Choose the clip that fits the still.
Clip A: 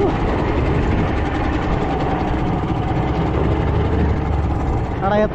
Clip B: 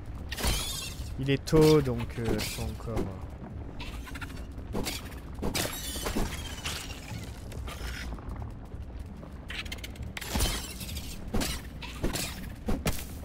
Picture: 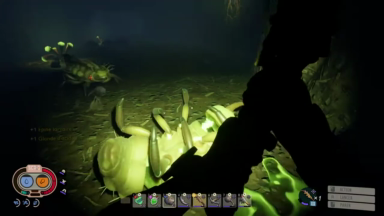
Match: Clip B